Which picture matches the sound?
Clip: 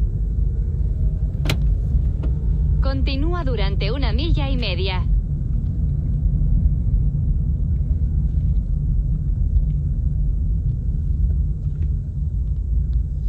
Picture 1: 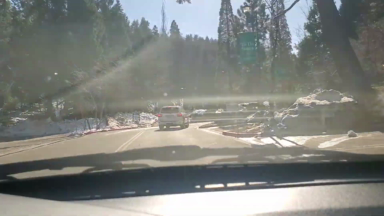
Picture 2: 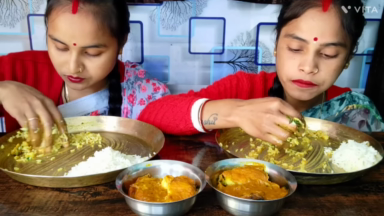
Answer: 1